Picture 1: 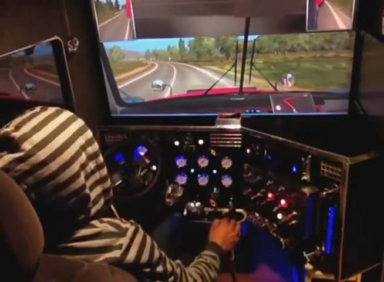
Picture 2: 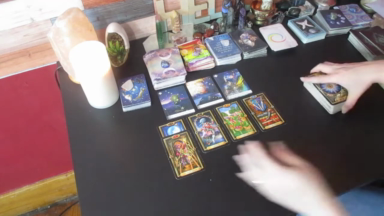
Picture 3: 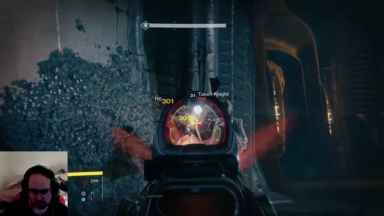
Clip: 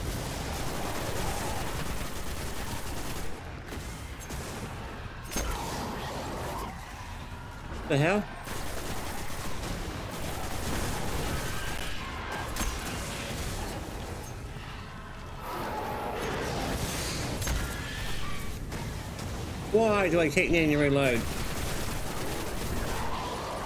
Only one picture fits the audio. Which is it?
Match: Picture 3